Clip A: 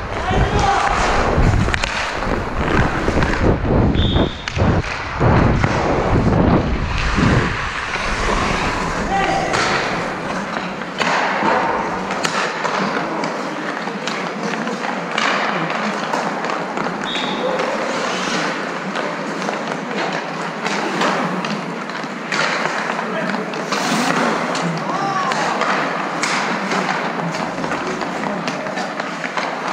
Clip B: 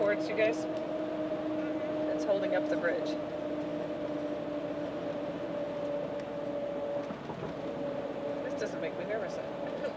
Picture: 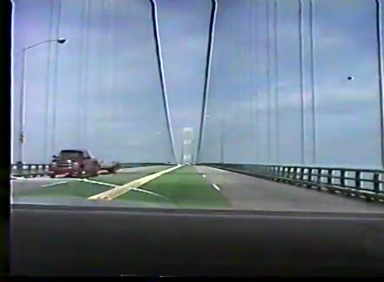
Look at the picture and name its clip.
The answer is B